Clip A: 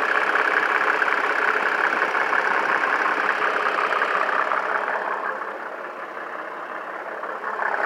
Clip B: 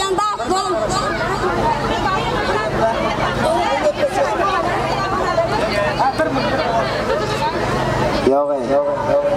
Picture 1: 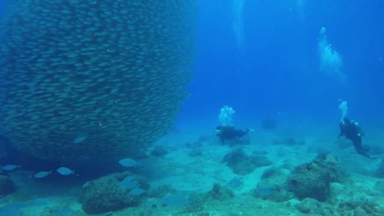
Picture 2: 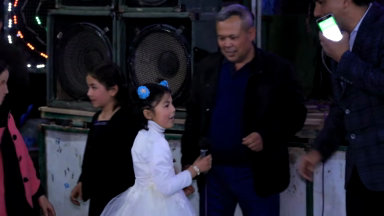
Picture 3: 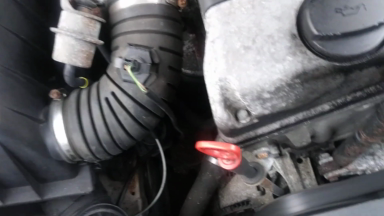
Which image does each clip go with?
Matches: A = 3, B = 2